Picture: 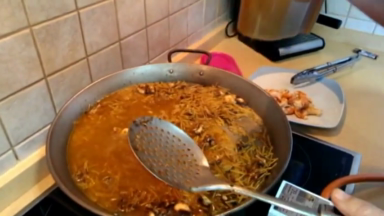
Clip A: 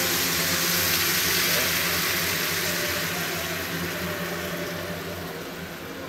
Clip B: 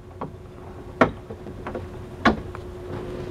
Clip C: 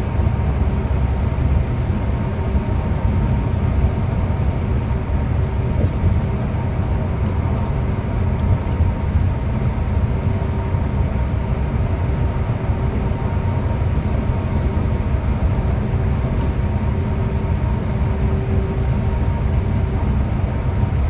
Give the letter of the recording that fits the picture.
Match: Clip A